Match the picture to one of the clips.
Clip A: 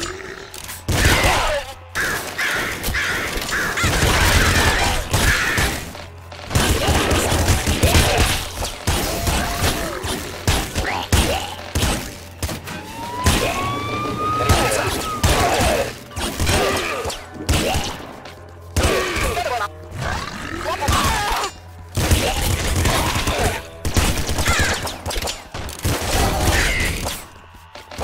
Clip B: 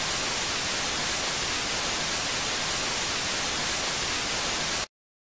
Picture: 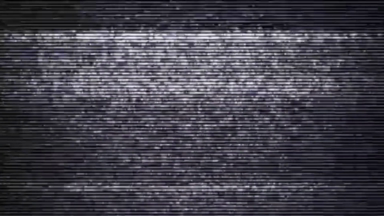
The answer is B